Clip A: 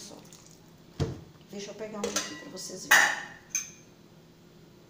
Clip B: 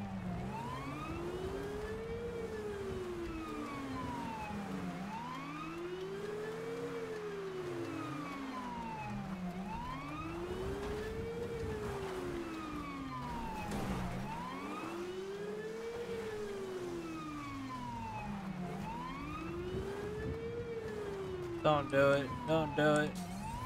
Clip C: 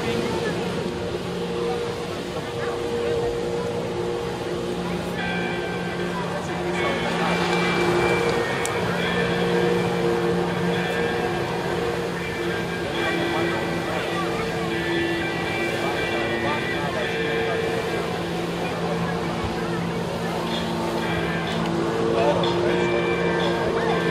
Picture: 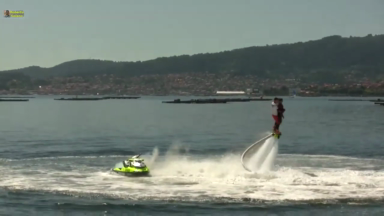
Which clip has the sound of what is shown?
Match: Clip C